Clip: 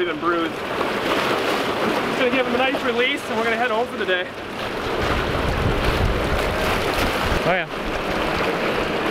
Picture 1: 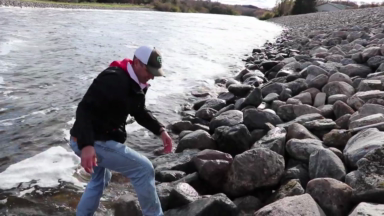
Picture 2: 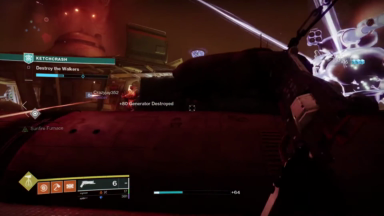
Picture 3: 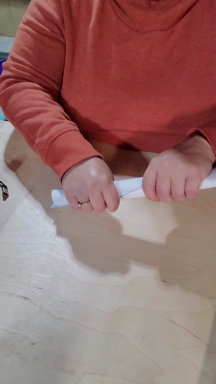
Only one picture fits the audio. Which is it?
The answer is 1